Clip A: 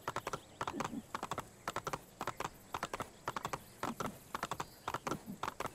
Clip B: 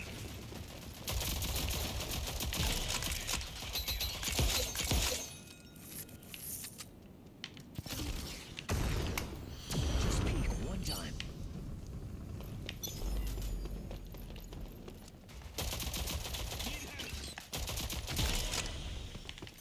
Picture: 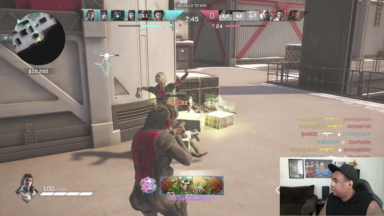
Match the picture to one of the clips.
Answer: B